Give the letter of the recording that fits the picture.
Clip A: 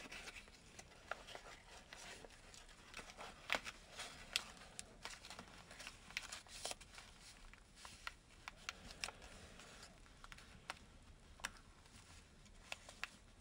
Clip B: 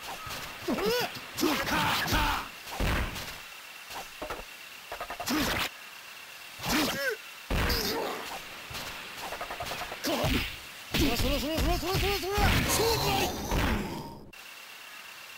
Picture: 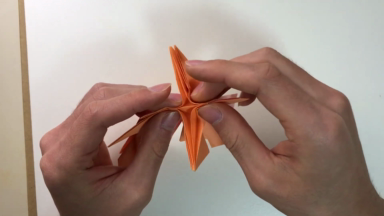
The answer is A